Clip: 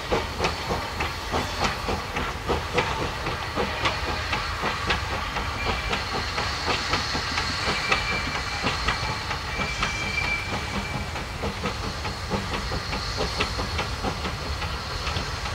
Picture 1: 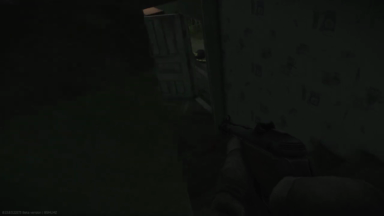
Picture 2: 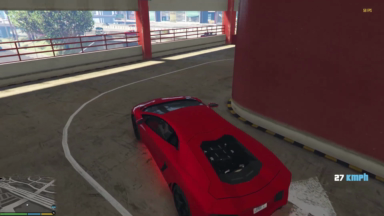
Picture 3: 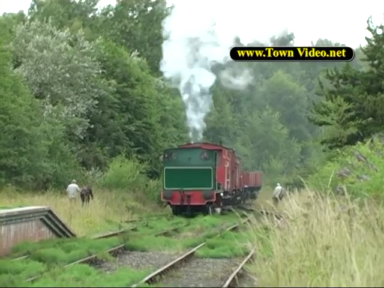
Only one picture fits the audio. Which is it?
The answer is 3